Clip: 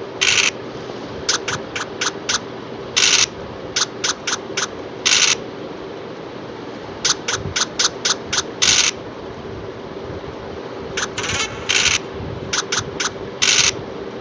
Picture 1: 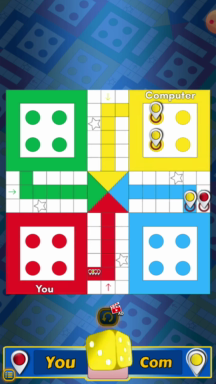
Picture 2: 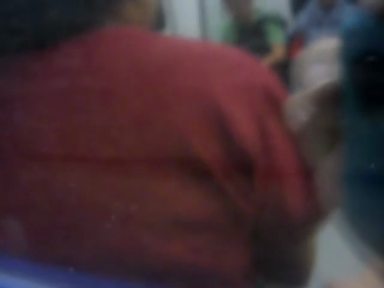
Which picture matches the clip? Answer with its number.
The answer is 1